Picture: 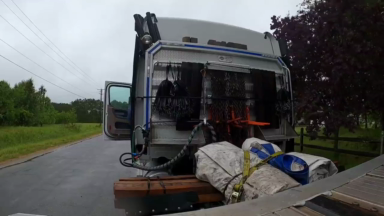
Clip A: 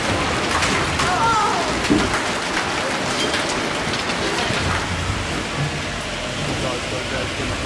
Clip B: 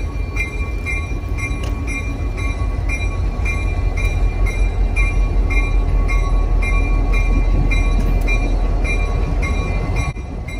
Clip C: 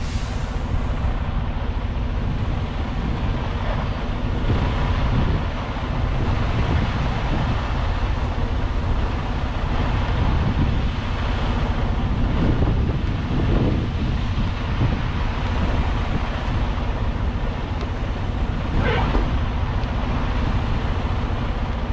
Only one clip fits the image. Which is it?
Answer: C